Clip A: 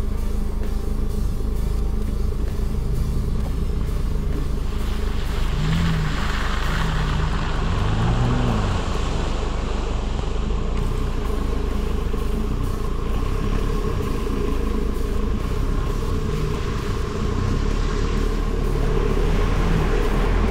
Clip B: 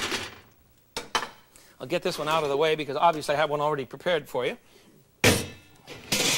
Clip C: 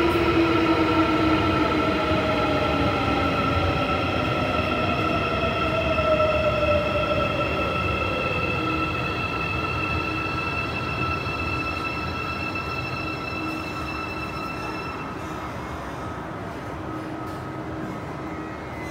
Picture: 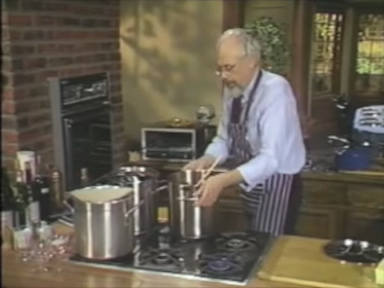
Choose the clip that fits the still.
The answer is B